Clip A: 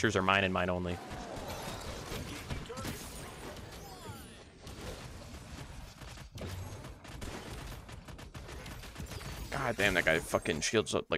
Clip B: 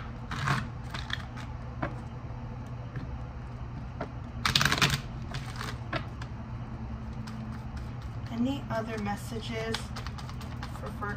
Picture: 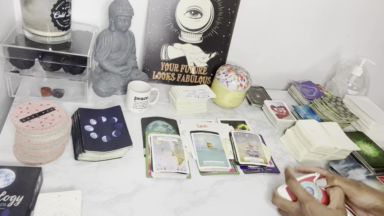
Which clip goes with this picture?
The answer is B